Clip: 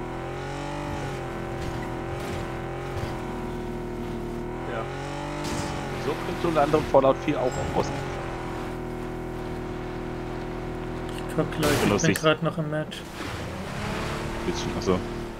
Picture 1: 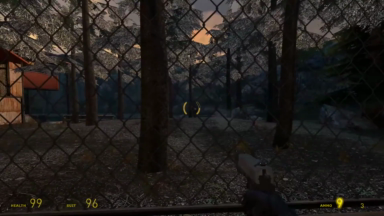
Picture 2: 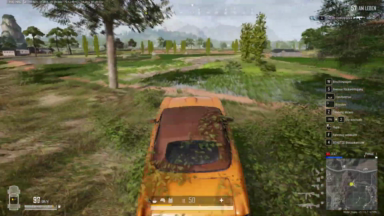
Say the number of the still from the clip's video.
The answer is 2